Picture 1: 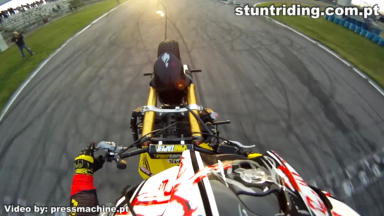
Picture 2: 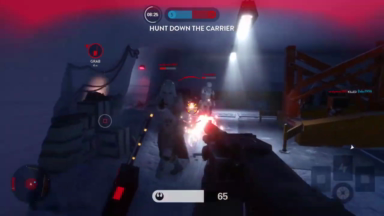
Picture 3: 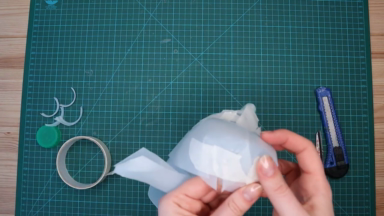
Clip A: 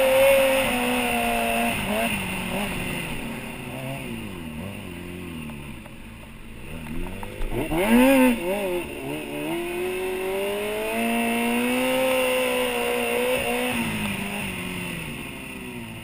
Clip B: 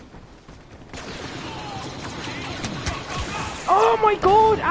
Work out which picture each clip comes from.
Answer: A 1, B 2